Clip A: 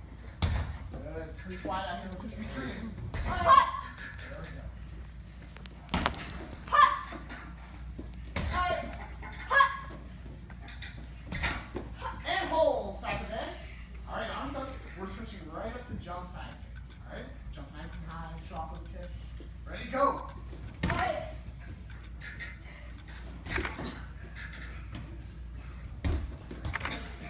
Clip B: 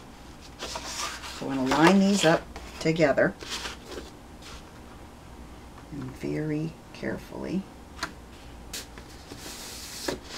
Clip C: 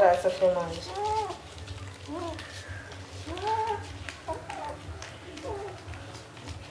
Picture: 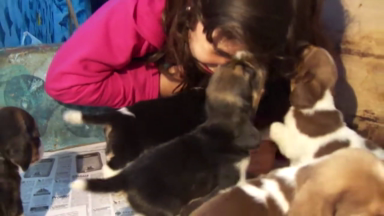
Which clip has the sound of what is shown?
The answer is C